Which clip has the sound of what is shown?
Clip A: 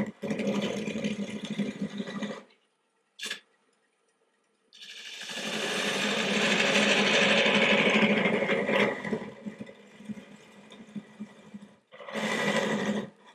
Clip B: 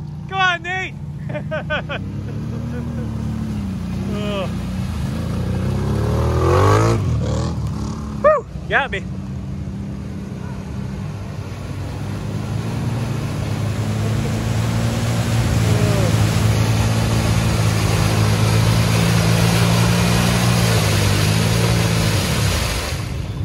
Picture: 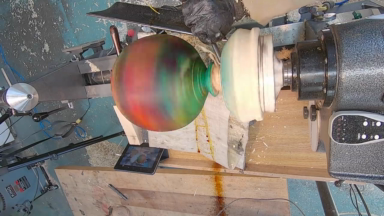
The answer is A